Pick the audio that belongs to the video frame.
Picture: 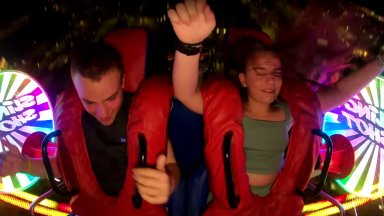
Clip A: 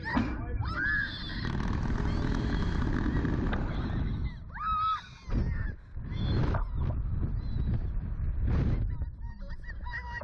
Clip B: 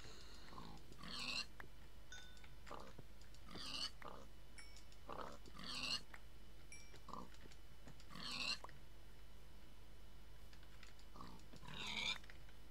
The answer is A